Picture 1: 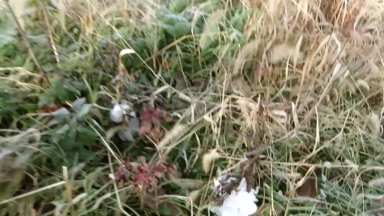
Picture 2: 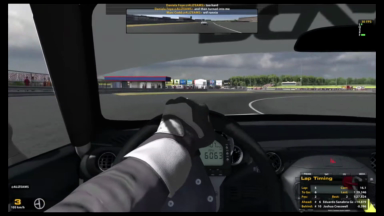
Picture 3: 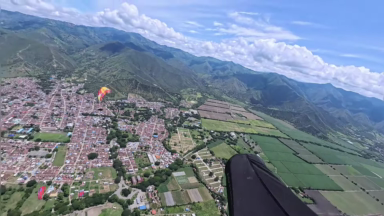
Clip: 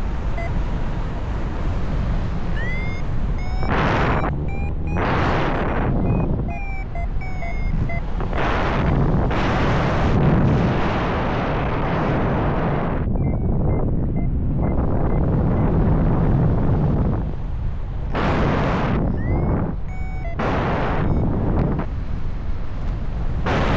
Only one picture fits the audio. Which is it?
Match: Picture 3